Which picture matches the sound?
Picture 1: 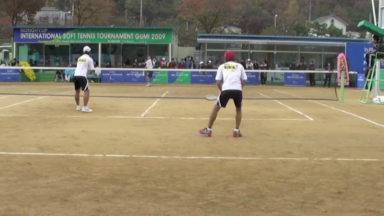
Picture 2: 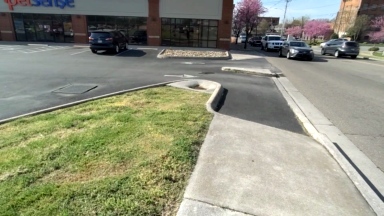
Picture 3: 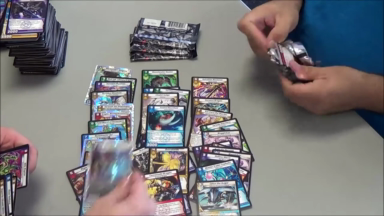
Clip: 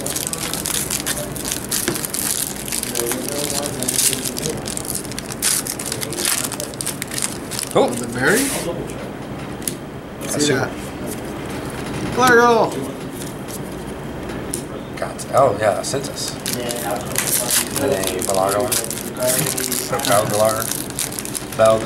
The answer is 3